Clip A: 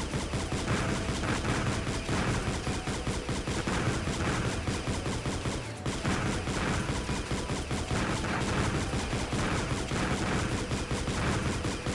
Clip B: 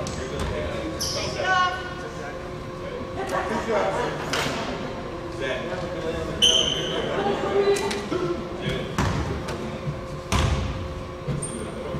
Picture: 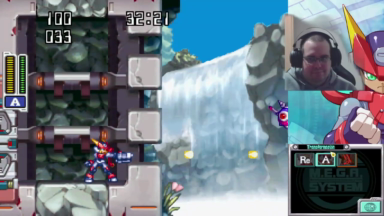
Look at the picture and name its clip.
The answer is A